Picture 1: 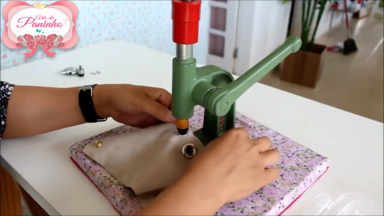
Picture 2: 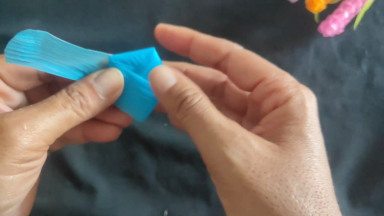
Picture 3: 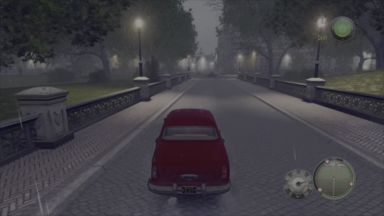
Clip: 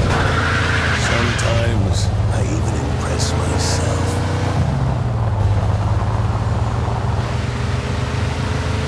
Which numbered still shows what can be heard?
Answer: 3